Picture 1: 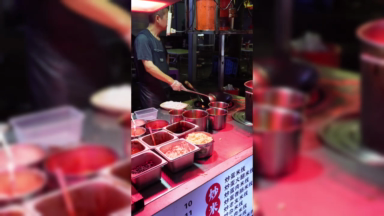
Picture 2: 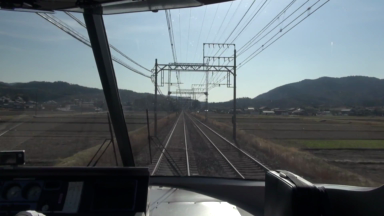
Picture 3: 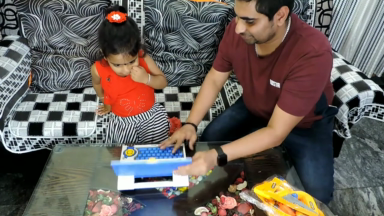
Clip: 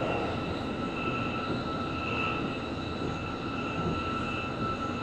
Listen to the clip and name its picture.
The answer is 2